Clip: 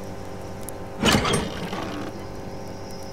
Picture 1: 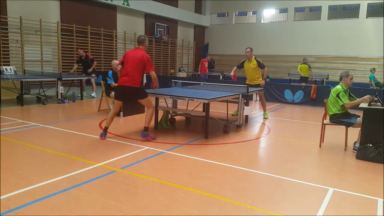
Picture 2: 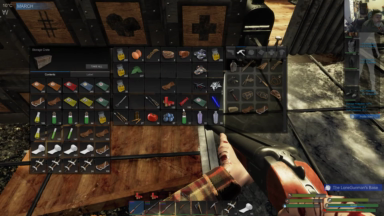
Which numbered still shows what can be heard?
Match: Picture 2